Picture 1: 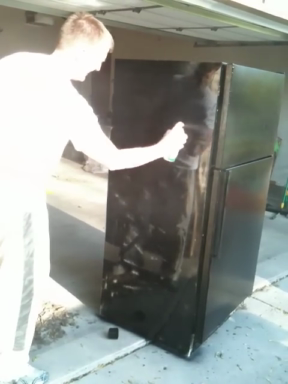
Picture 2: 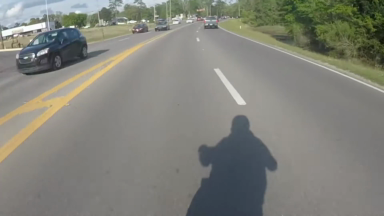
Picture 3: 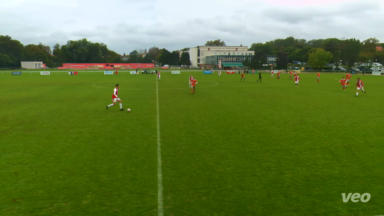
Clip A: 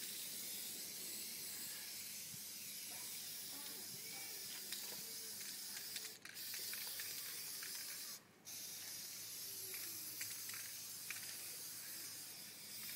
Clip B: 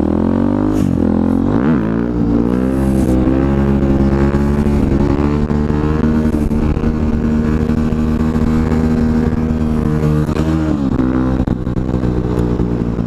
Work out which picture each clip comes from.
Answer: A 1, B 2